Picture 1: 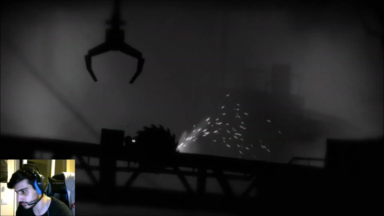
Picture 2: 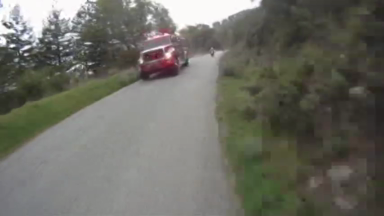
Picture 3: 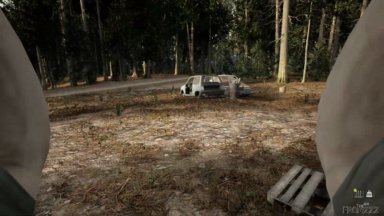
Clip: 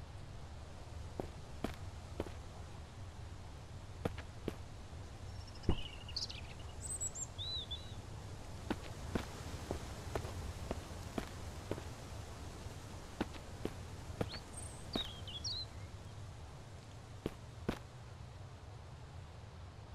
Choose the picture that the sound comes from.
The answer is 3